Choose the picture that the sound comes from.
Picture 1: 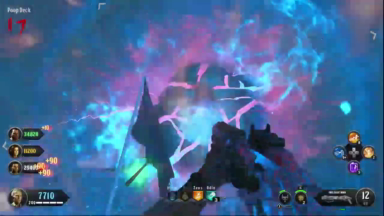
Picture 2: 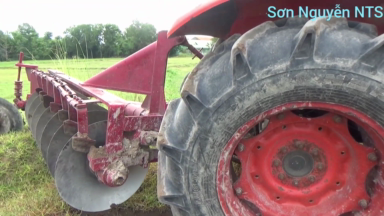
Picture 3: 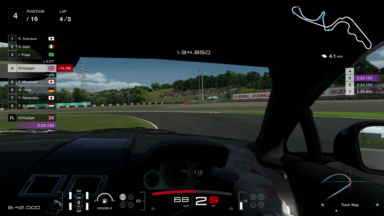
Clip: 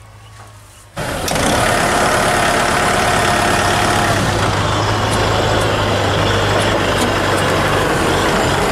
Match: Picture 2